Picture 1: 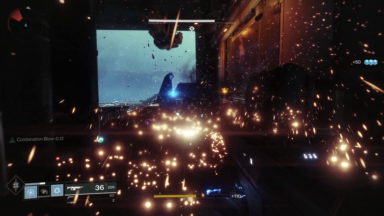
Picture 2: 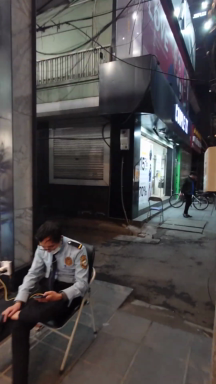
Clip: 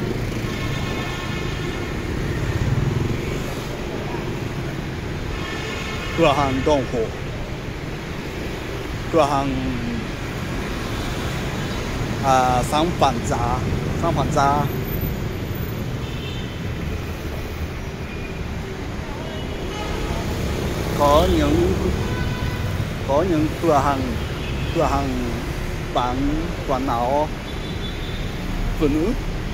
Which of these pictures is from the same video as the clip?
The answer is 2